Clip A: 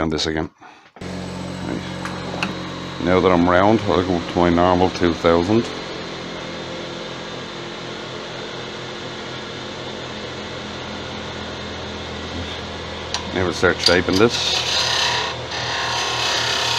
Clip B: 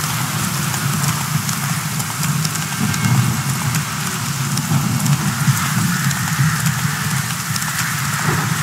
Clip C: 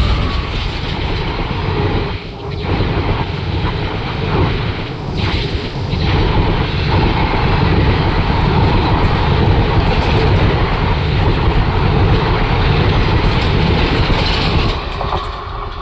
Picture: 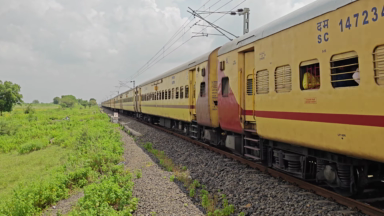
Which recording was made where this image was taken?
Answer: C